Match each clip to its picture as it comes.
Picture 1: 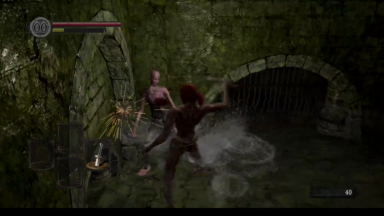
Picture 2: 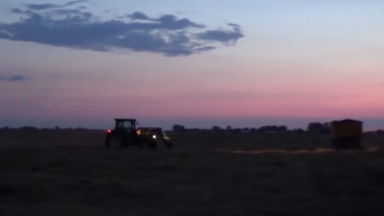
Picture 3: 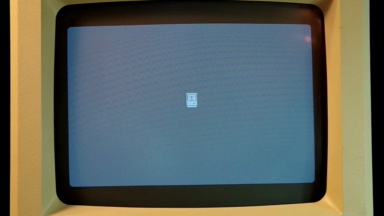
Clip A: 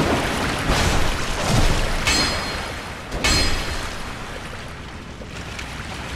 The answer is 1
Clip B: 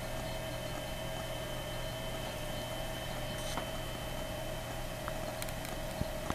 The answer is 3